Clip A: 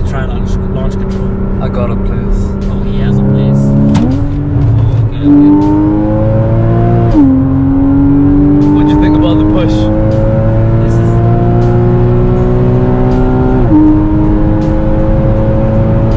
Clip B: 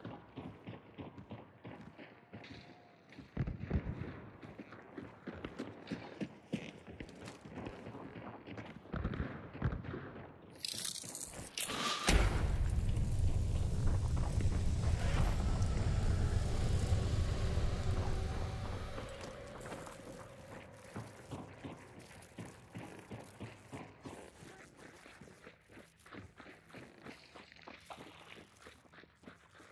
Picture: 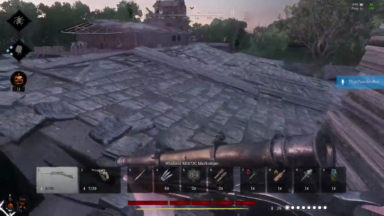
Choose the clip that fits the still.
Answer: B